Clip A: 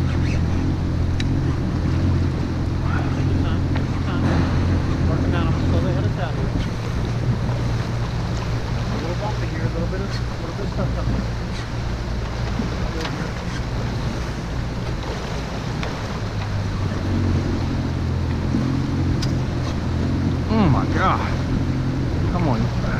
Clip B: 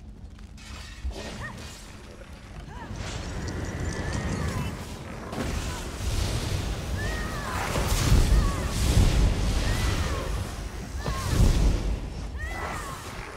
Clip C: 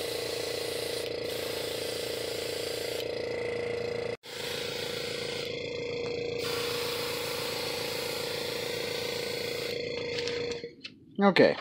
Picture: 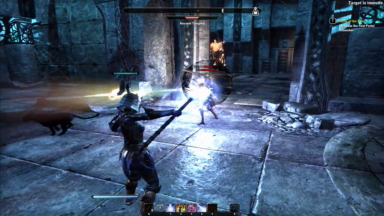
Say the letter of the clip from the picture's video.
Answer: B